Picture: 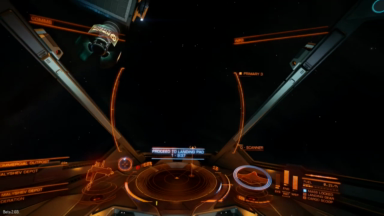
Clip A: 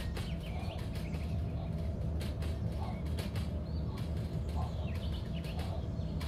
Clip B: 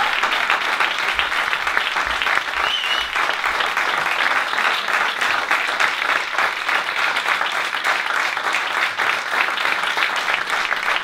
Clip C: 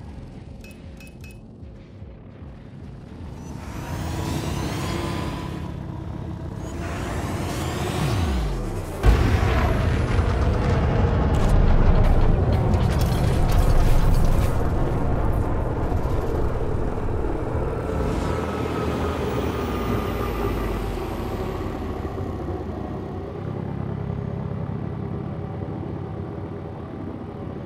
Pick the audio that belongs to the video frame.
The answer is C